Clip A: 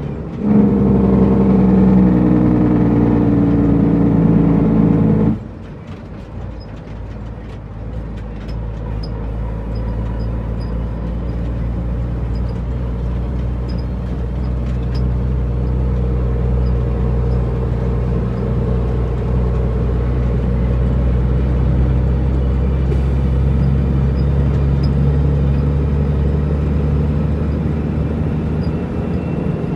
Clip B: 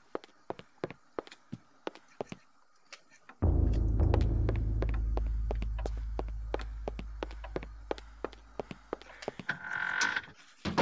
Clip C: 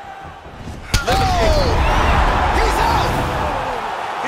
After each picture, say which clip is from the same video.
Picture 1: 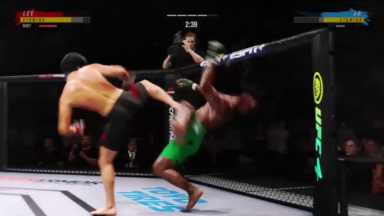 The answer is C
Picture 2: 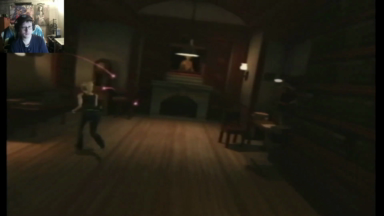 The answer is B